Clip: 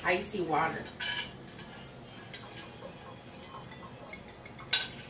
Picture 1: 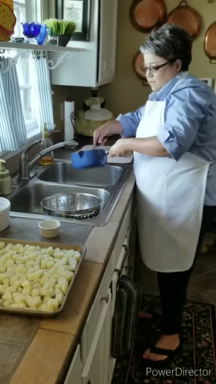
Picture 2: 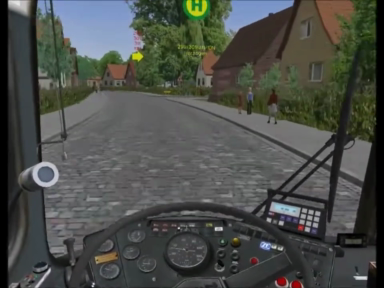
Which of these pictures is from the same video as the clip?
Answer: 1